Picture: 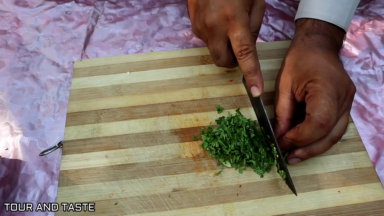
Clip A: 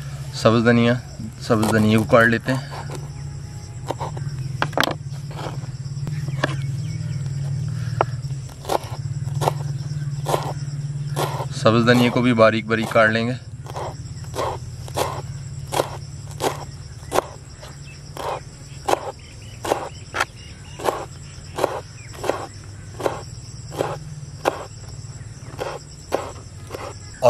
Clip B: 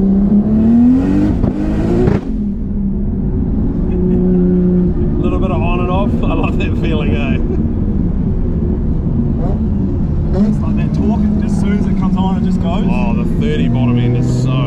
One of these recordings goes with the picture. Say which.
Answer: A